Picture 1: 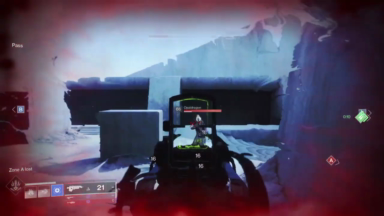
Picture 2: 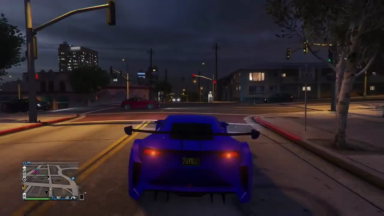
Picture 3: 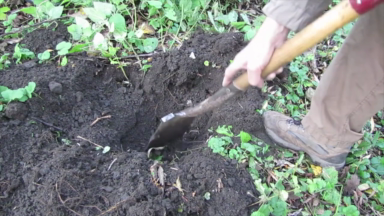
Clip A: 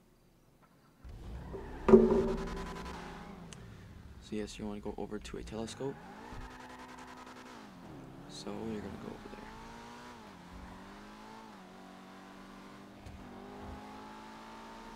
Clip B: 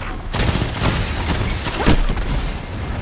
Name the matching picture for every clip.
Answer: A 2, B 1